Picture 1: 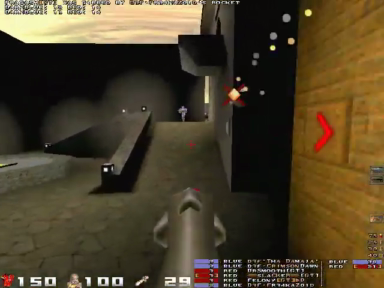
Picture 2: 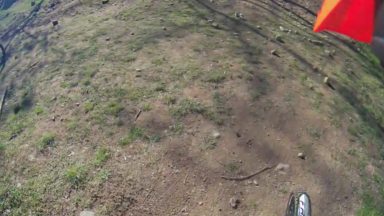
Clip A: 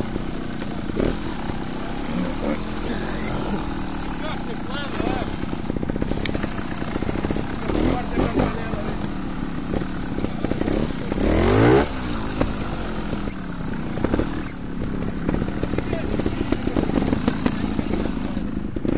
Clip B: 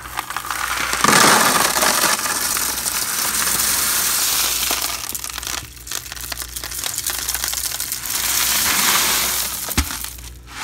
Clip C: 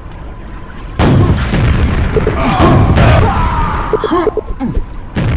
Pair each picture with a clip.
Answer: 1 C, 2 A